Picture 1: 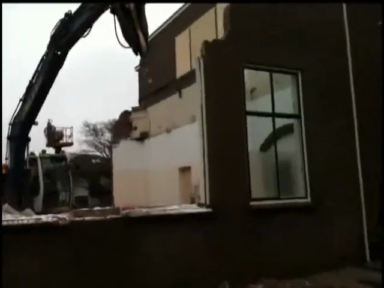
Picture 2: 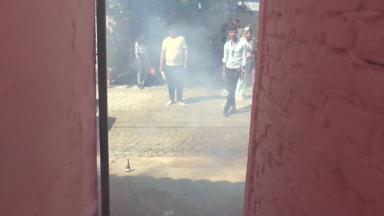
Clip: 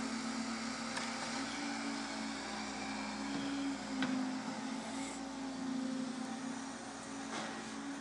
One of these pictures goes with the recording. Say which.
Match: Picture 1